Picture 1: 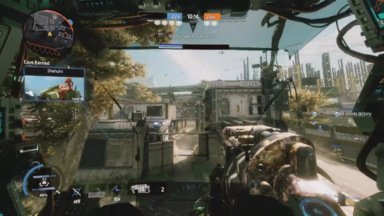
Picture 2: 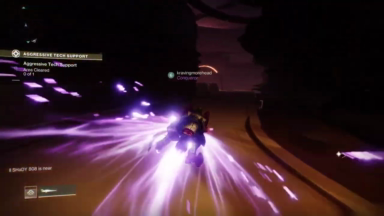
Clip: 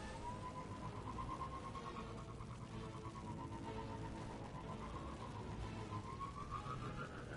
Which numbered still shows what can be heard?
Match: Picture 2